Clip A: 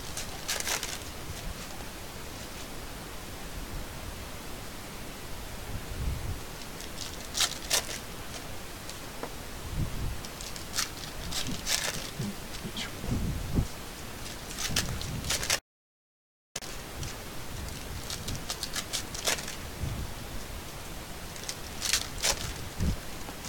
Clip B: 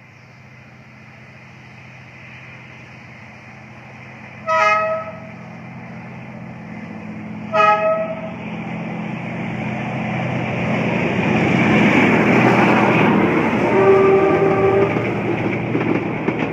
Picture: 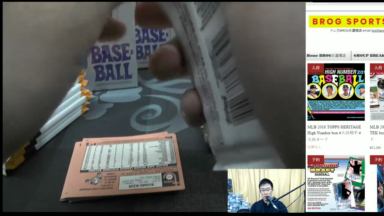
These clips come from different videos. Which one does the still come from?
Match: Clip A